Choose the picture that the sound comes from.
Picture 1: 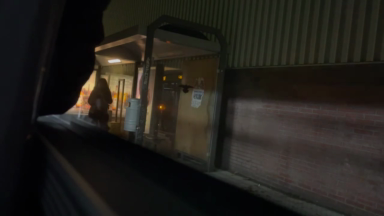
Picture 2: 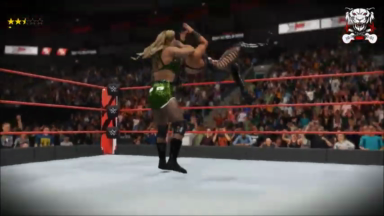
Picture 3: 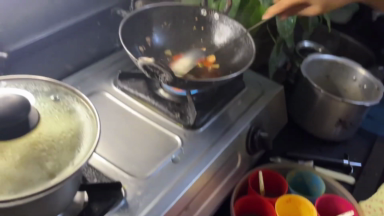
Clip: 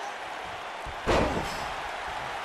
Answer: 2